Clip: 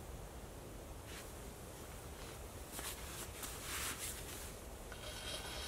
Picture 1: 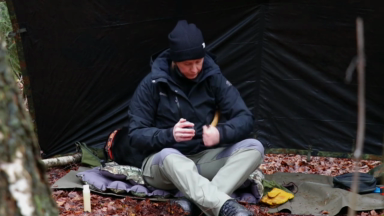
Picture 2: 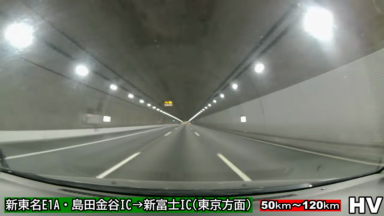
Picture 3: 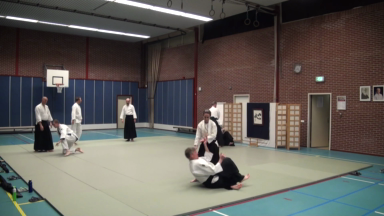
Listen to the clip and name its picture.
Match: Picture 1